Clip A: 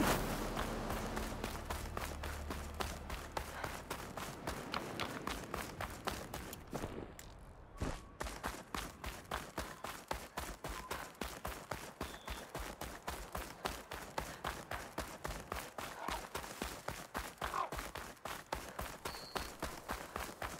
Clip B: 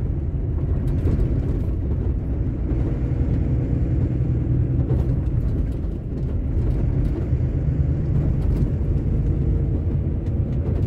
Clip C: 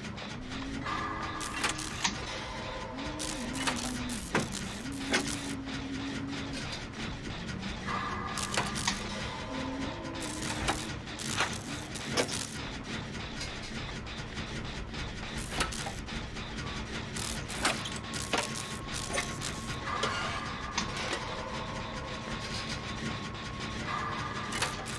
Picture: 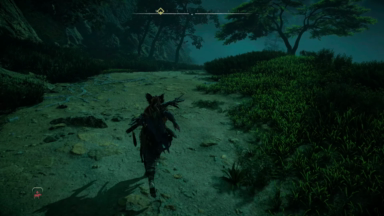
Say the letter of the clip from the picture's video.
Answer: A